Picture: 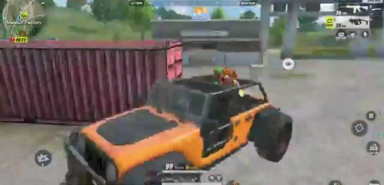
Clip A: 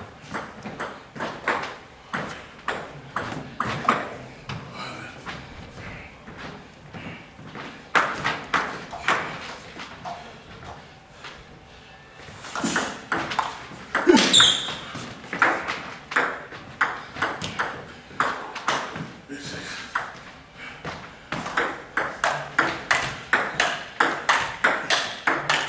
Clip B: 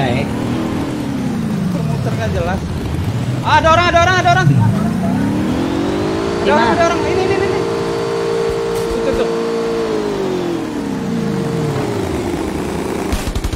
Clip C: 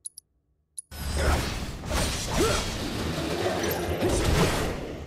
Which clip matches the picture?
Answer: B